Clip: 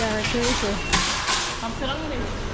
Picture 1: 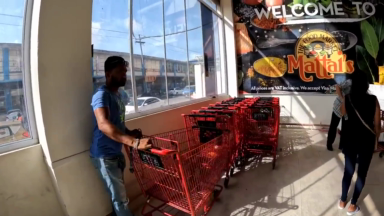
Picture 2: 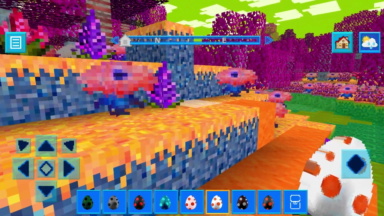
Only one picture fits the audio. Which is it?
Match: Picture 1